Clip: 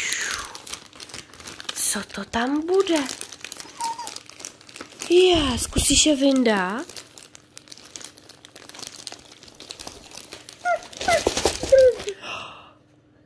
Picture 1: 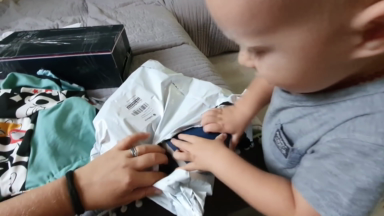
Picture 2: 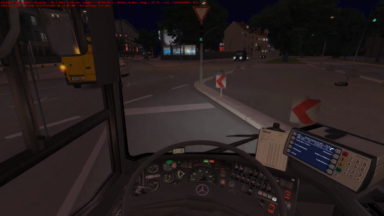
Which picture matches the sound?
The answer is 1